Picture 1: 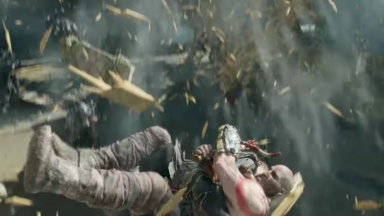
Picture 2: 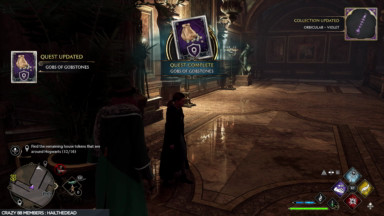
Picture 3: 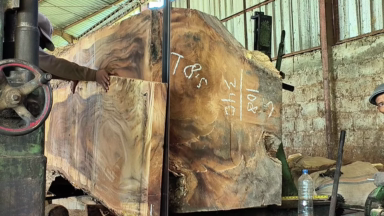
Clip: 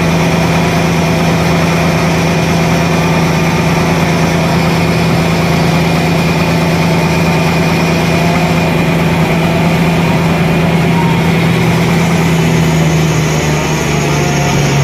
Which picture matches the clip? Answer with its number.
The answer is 3